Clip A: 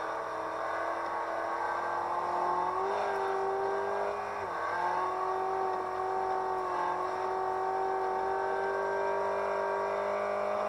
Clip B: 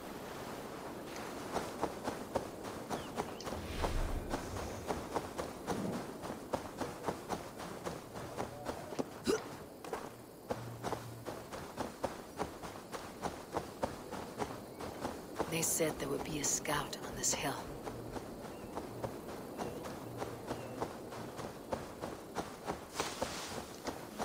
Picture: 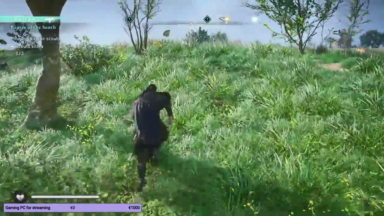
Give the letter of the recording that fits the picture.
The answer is B